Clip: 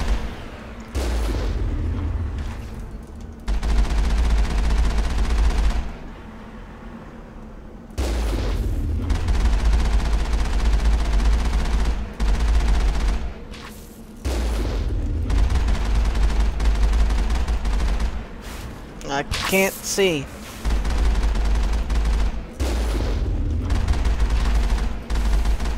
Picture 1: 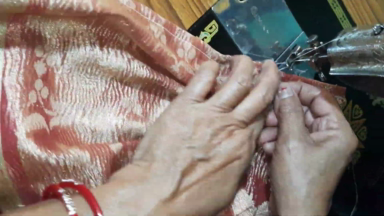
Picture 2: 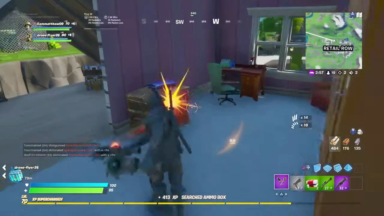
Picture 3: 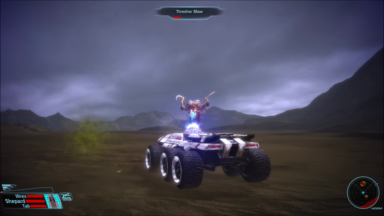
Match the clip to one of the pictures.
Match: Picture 3